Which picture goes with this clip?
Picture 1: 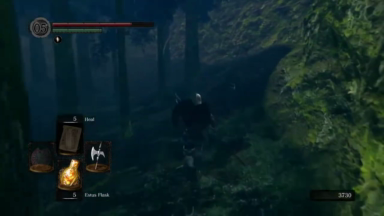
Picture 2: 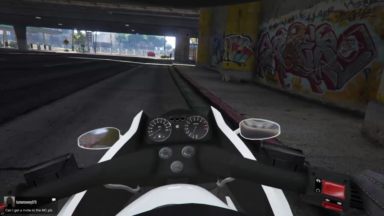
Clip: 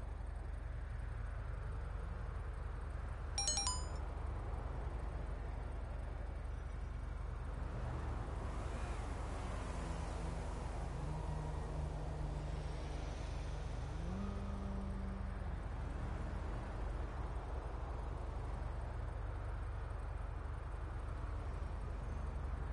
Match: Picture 2